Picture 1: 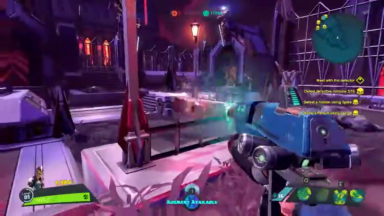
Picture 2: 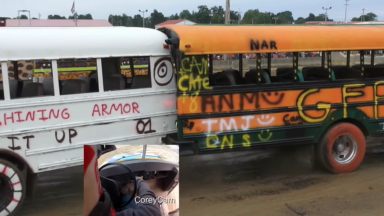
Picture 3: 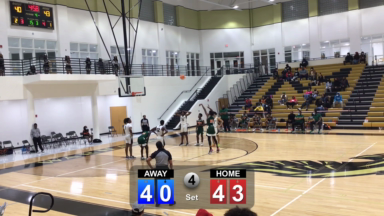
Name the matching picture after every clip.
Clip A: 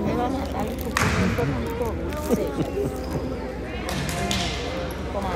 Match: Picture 3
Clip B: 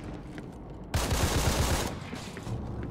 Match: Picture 1